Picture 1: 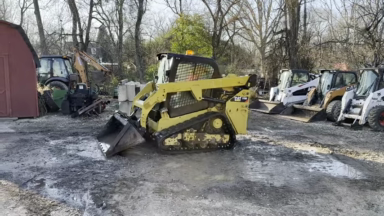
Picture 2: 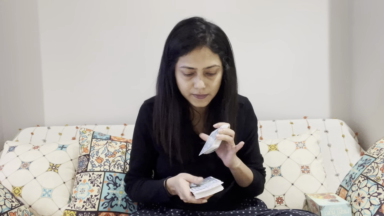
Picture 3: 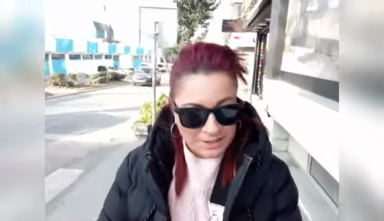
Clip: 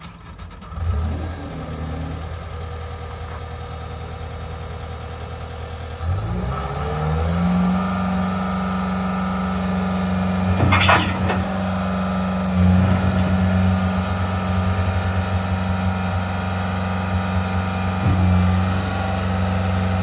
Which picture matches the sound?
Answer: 1